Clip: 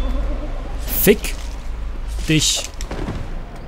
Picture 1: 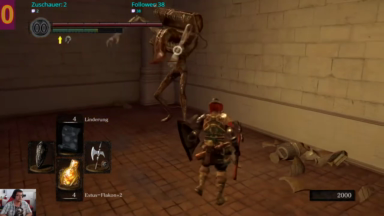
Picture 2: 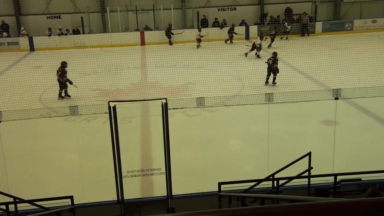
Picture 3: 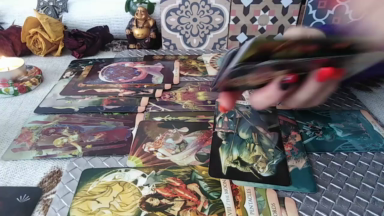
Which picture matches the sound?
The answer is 1